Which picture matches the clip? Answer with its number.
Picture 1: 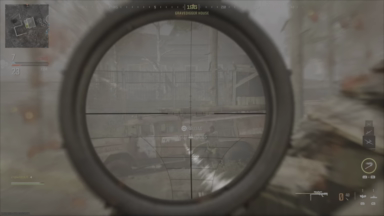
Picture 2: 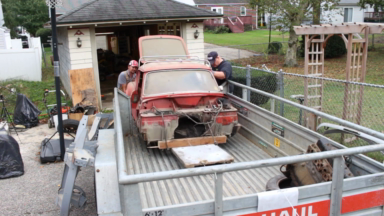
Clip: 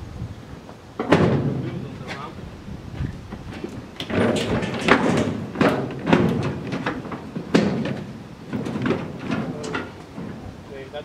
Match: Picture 2